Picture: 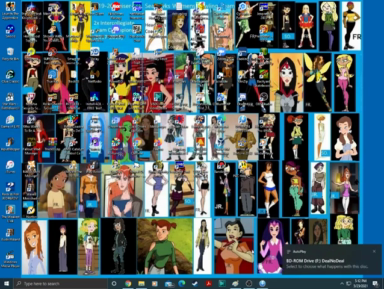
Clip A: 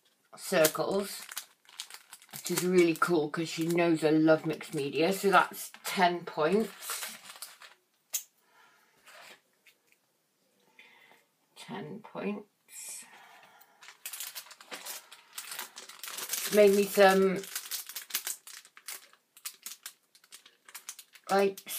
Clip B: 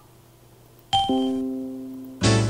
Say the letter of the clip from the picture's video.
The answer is B